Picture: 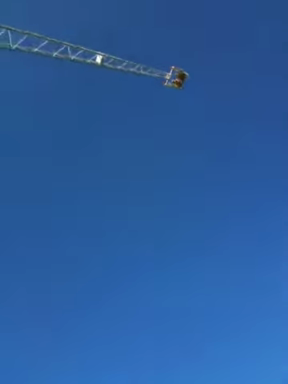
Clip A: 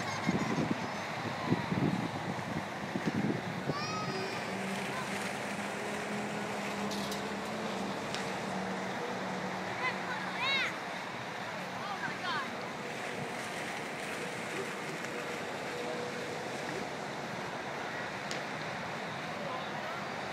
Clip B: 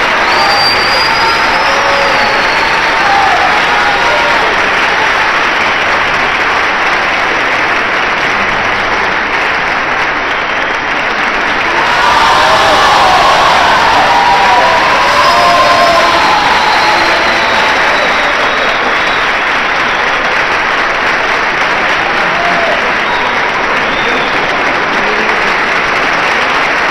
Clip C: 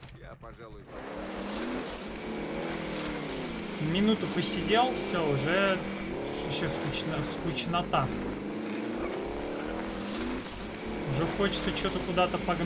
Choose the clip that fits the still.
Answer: A